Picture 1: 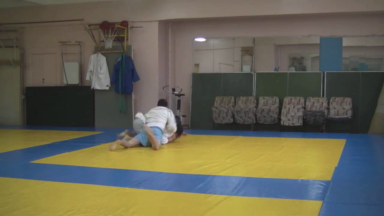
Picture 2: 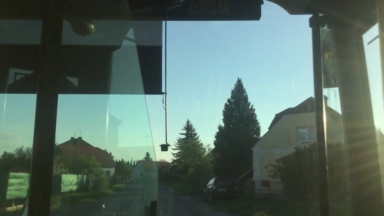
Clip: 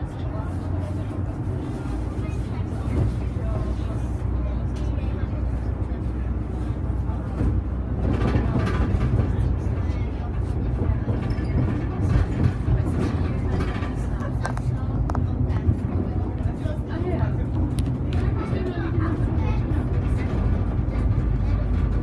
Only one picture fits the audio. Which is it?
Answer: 2